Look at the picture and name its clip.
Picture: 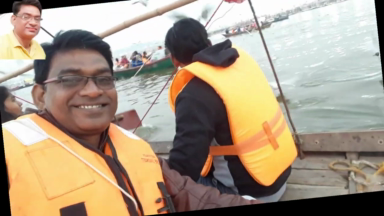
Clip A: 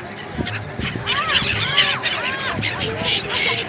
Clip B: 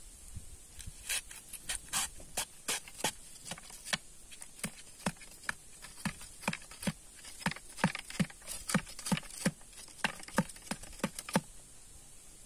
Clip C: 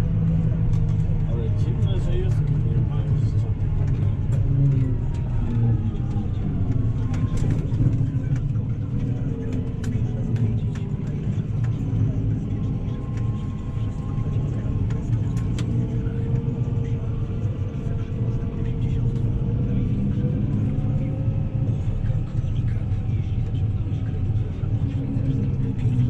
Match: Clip A